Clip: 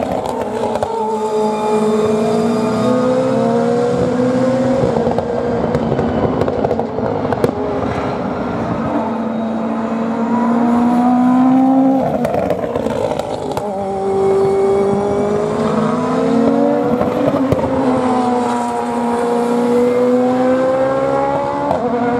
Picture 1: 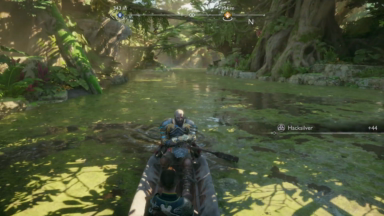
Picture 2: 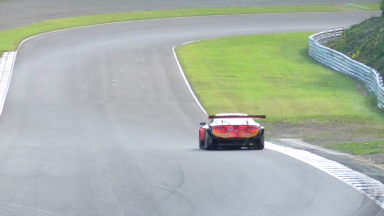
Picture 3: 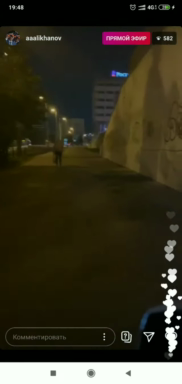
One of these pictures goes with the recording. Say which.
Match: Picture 2